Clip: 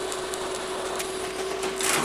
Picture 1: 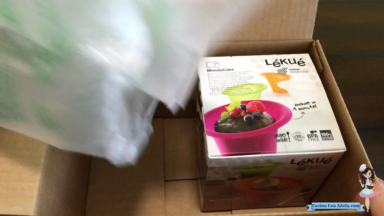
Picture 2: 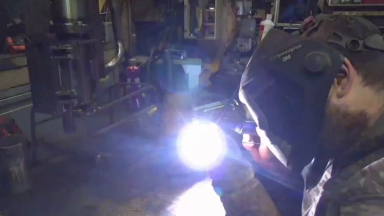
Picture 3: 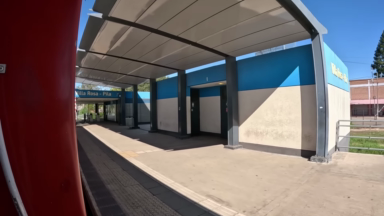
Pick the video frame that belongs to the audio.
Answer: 2